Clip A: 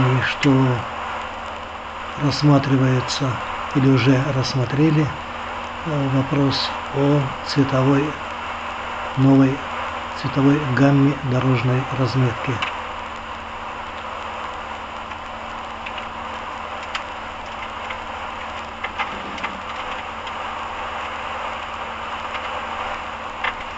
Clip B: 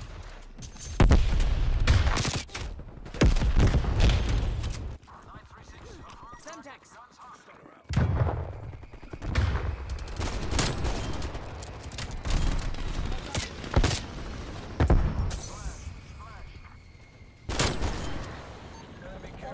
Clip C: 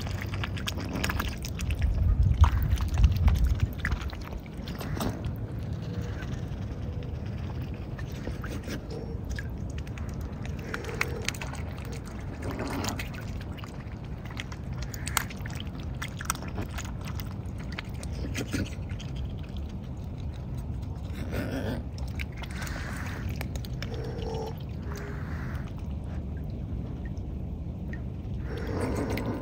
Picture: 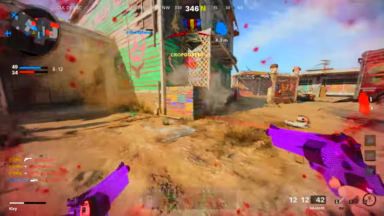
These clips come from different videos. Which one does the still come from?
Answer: B